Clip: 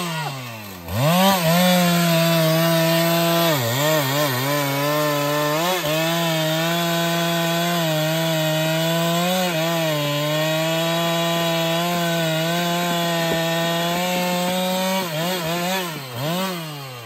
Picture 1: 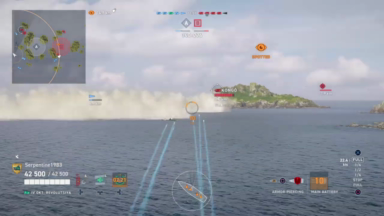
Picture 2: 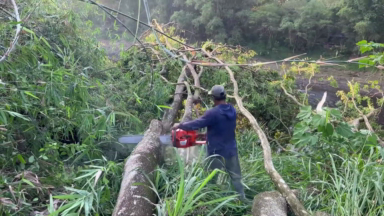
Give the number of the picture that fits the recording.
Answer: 2